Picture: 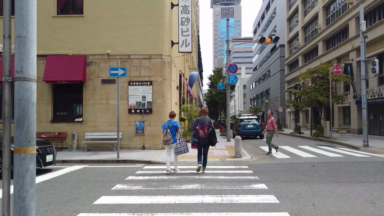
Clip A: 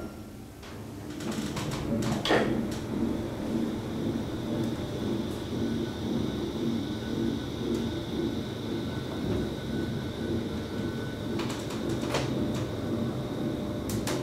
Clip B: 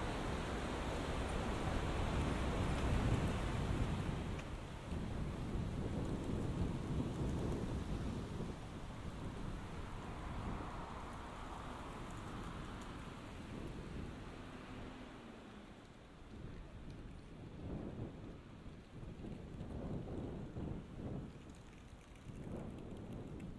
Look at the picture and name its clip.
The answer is B